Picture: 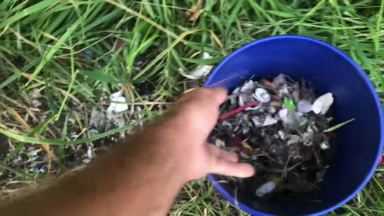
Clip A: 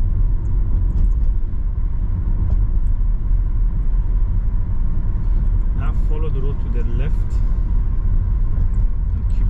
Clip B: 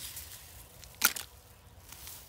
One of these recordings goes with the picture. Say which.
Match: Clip B